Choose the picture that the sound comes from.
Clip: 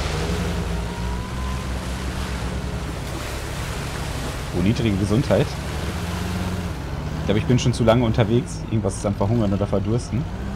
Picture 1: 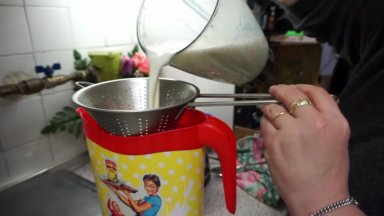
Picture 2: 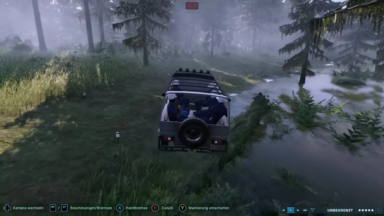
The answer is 2